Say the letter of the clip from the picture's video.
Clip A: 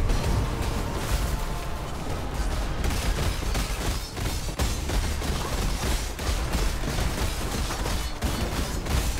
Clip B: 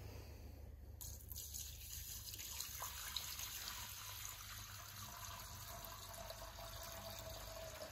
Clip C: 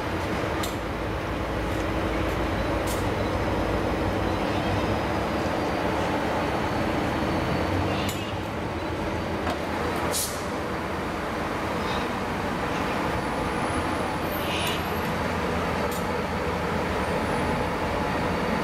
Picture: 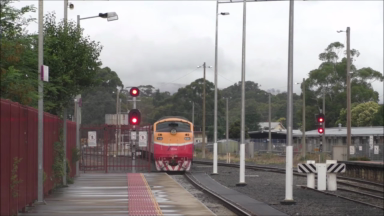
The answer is C